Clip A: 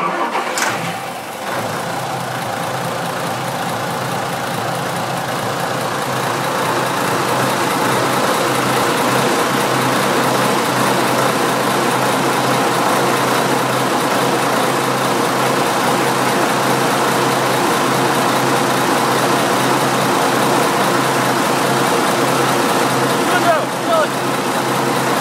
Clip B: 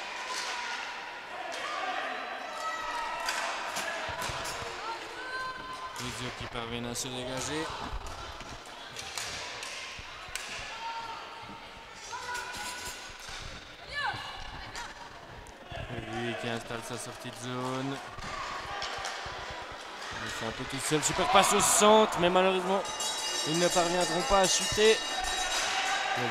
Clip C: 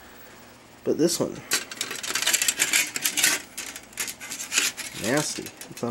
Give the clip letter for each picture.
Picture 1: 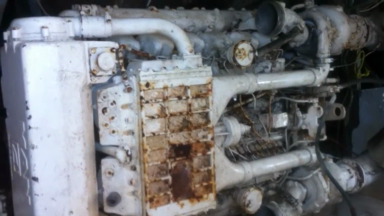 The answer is A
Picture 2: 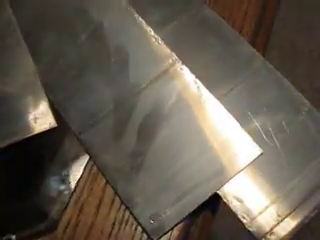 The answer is C